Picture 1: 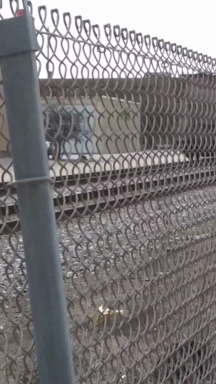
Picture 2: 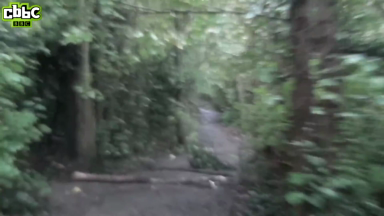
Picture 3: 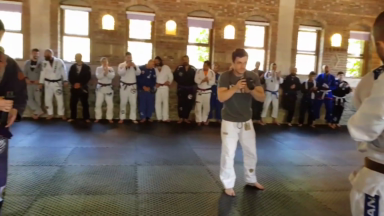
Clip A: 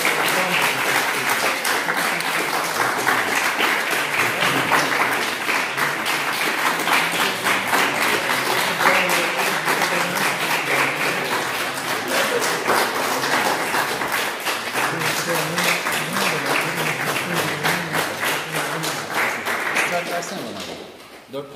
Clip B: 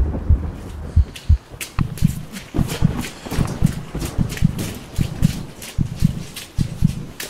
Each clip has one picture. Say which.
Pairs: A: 3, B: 2